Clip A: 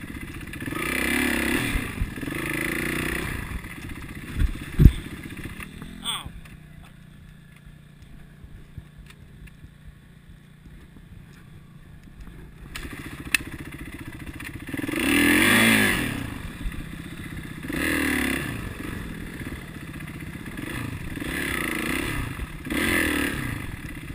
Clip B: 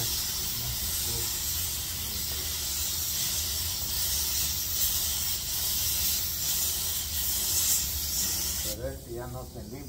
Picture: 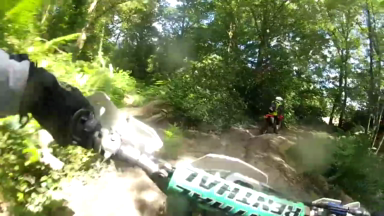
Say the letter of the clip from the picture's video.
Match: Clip A